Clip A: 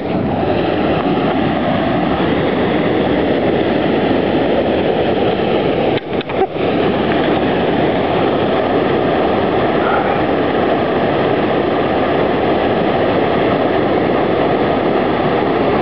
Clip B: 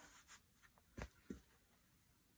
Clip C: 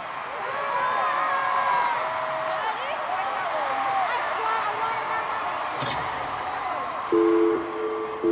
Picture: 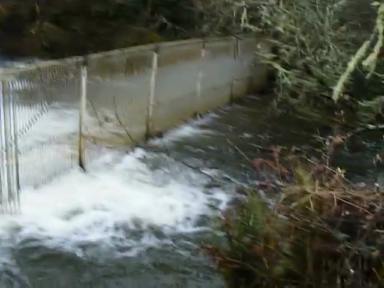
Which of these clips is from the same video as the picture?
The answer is A